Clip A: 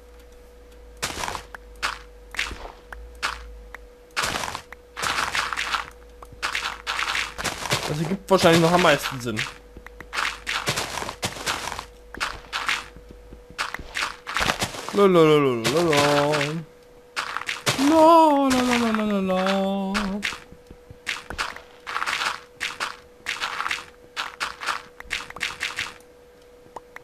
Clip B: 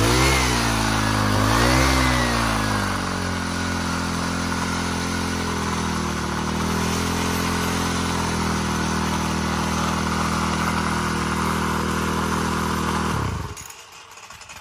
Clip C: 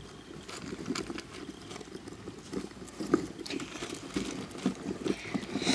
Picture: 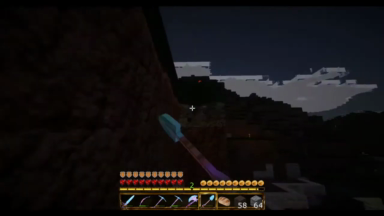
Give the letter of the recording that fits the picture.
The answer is A